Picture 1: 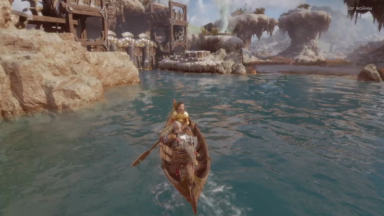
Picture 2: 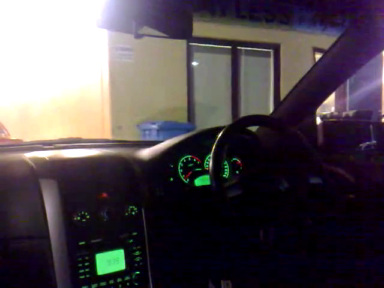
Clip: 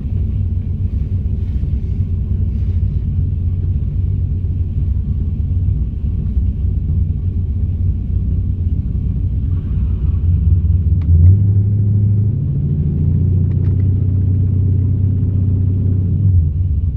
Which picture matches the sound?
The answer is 2